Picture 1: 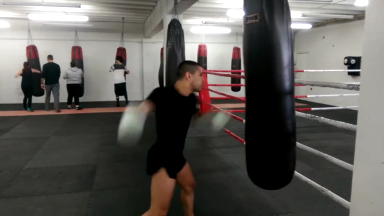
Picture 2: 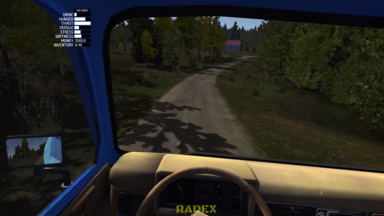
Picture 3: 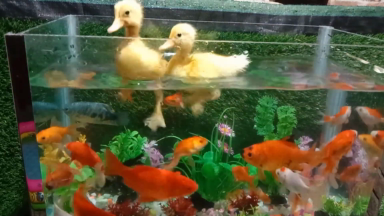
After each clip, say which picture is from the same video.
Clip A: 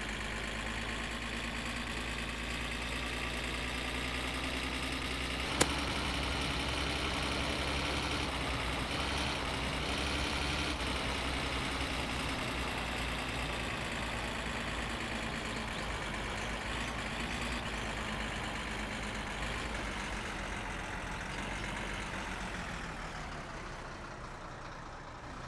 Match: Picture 2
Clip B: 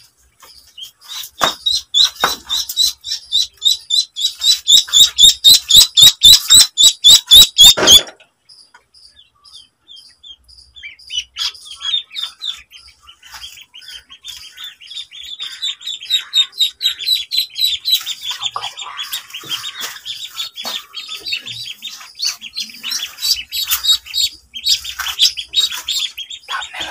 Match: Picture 3